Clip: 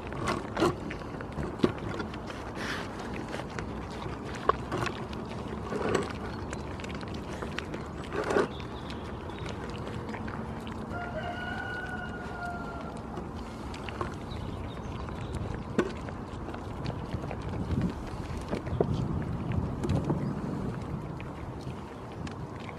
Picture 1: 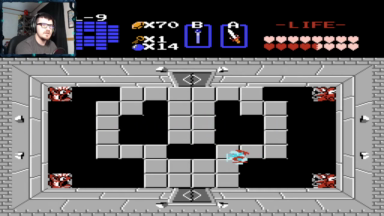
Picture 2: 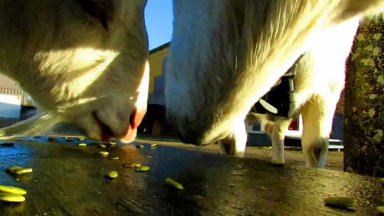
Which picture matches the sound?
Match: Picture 2